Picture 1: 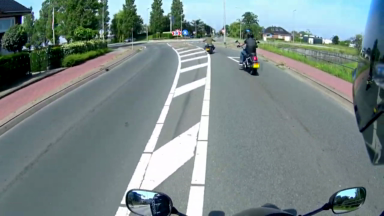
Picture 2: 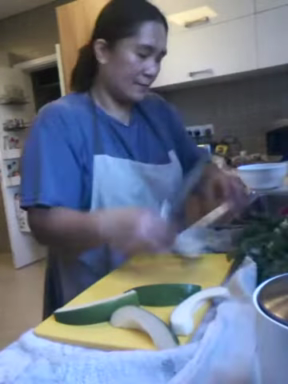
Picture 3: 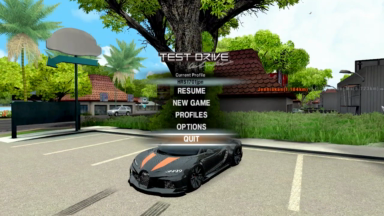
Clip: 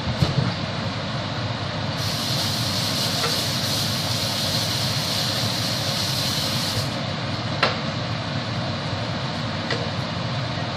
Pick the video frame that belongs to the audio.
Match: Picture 2